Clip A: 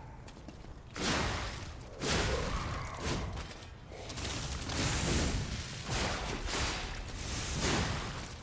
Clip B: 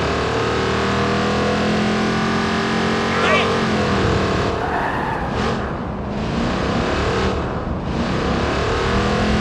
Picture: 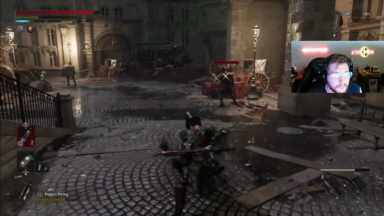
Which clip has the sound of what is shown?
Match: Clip A